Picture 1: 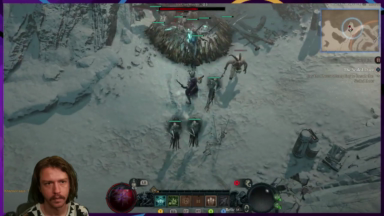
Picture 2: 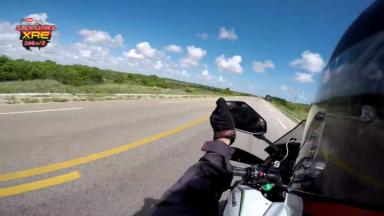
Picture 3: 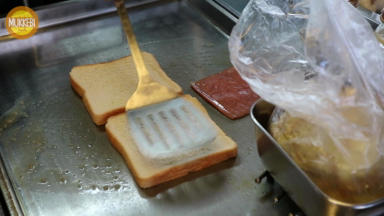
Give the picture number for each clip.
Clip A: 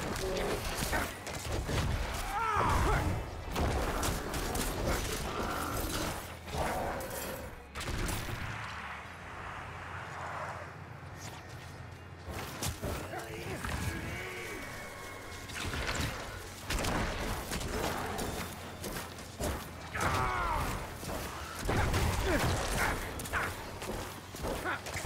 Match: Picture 1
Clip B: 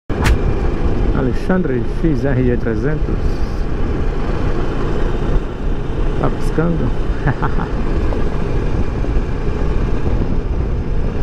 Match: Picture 2